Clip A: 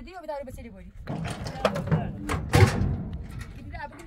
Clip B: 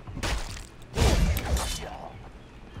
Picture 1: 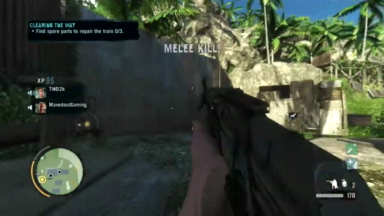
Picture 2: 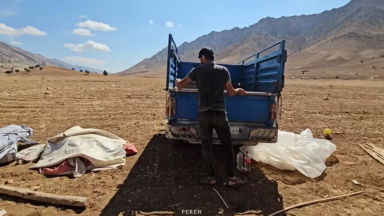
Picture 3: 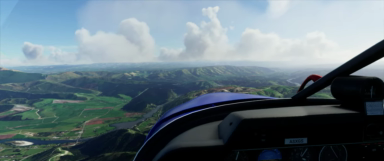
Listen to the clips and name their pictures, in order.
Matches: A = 2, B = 1